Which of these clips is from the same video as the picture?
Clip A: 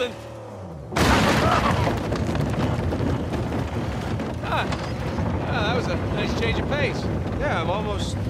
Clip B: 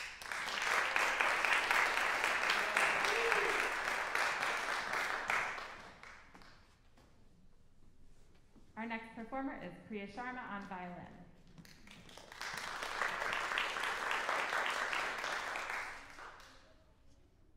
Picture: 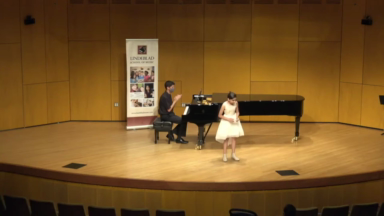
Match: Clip B